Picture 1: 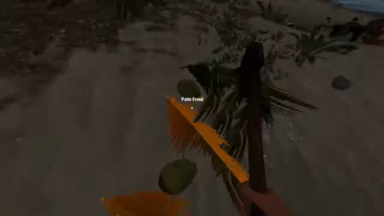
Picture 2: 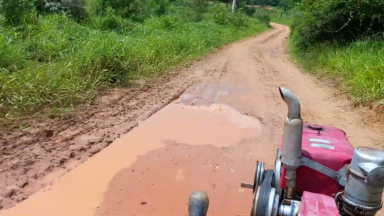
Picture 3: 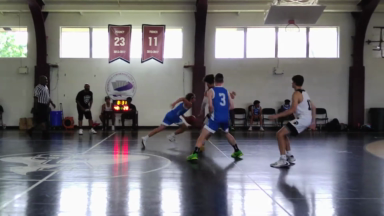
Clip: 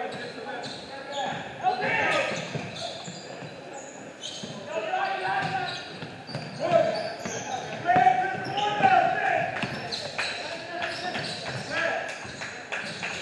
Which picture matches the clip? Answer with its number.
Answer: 3